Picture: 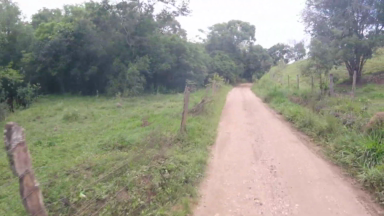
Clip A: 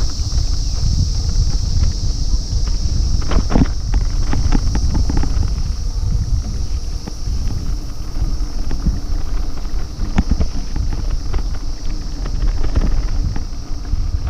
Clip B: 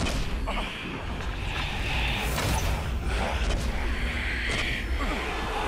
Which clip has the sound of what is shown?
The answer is A